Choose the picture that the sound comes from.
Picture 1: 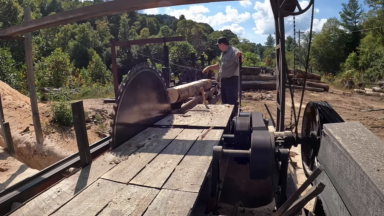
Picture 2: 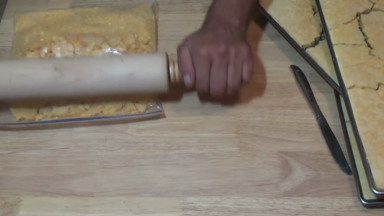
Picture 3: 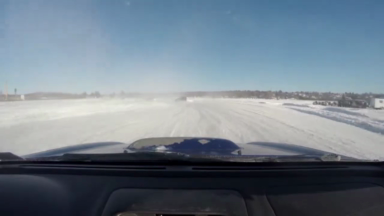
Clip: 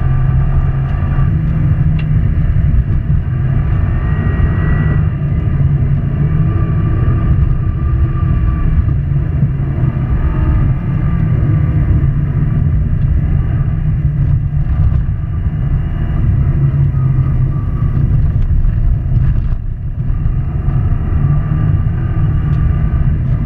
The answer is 3